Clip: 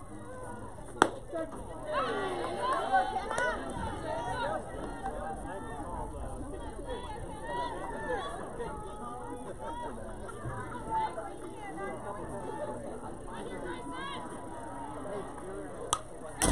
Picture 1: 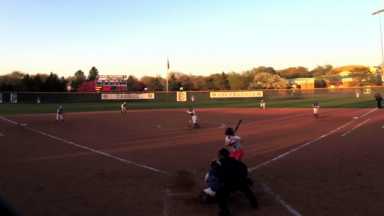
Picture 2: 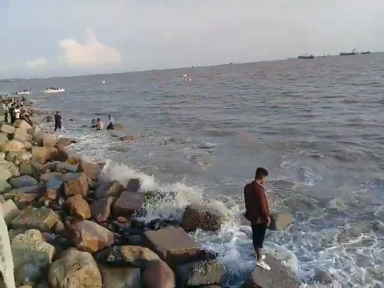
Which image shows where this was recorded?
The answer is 1